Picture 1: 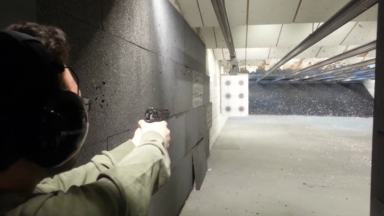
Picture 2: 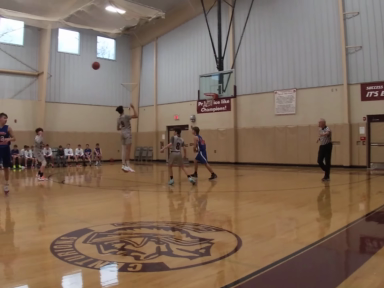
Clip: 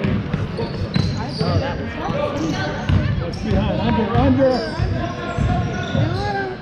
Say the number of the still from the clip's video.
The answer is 2